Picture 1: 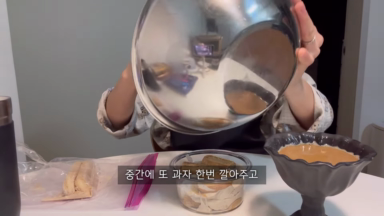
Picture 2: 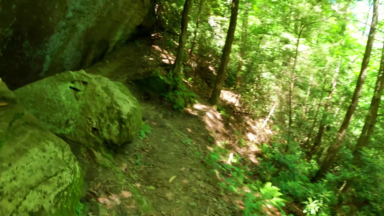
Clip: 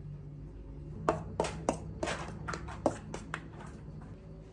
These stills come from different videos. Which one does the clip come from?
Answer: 1